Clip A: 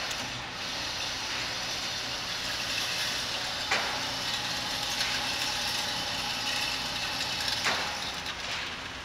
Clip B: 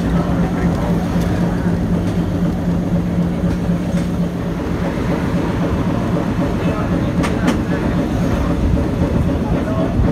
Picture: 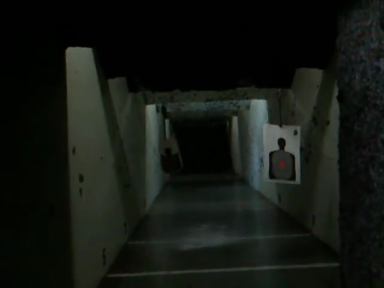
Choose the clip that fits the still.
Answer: A